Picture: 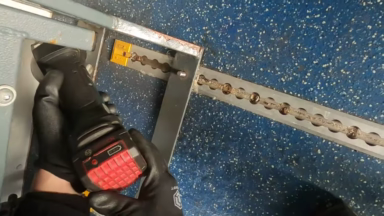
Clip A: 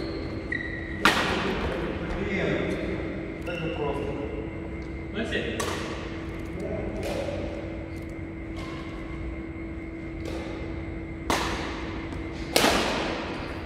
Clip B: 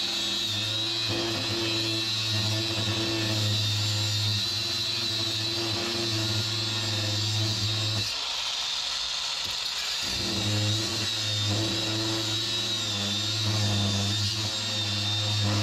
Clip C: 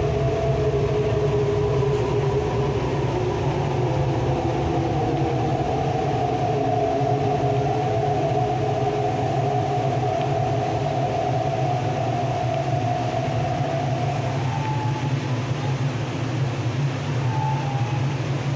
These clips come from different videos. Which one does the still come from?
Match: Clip B